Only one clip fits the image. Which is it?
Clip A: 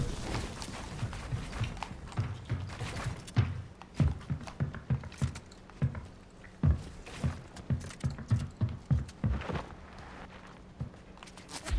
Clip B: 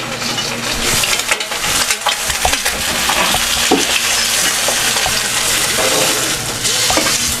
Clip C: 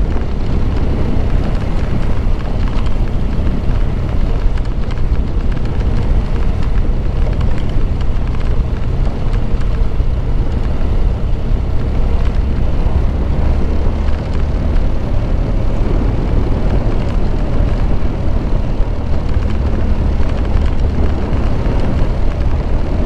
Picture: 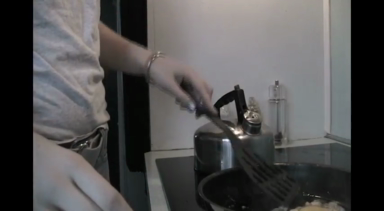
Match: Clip B